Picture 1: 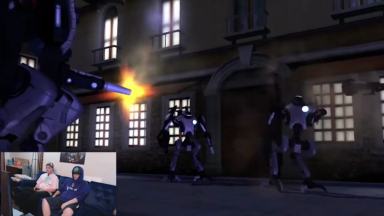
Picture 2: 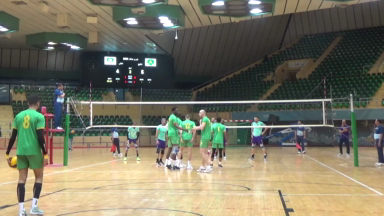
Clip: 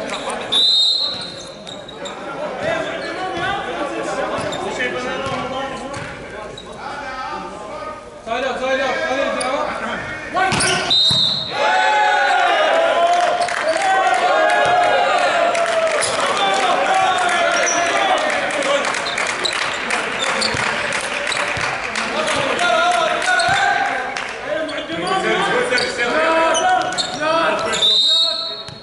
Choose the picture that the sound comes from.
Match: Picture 2